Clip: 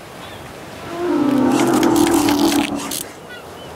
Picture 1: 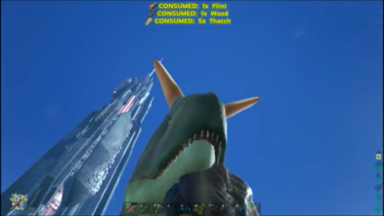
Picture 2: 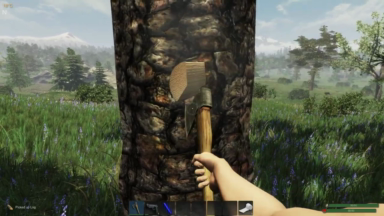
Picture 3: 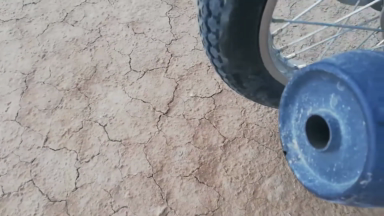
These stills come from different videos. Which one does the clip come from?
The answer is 1